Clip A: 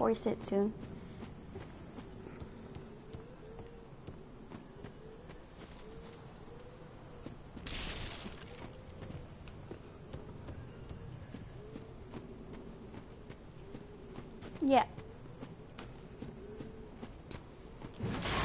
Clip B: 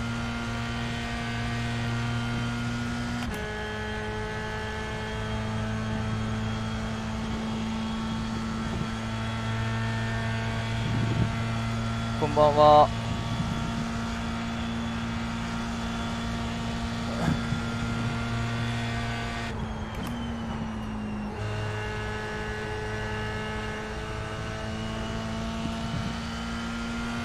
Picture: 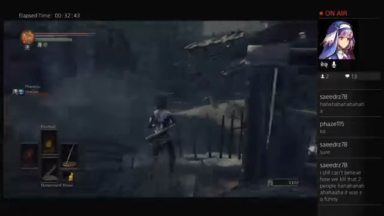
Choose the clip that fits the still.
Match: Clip A